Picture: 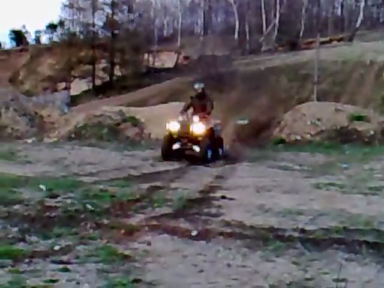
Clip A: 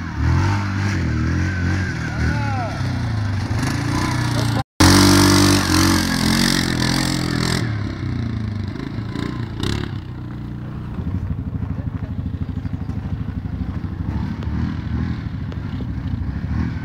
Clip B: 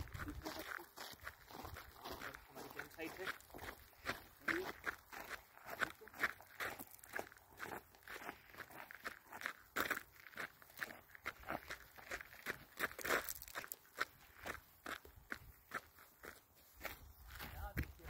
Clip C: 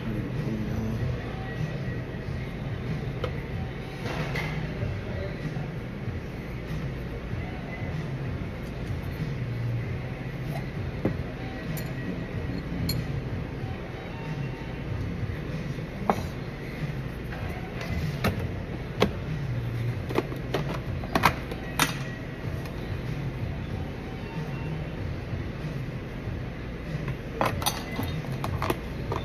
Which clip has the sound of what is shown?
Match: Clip A